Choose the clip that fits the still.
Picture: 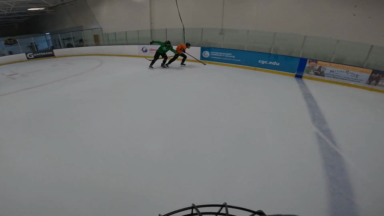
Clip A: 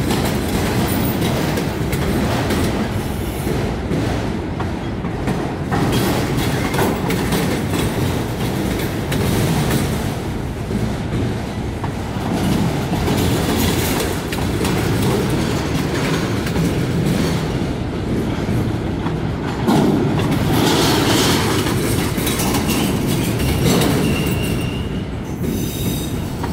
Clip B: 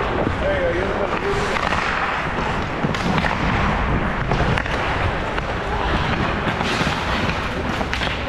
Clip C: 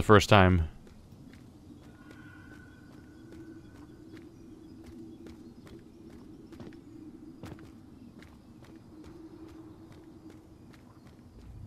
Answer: B